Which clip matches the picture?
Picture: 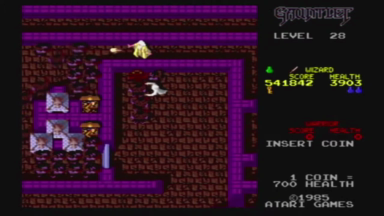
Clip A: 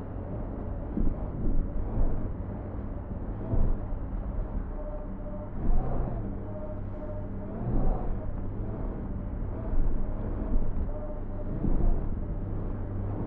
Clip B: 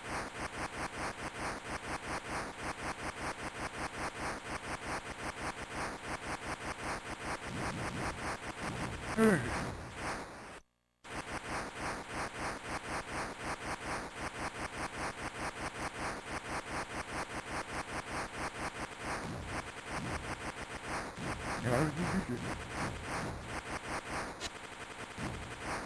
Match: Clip B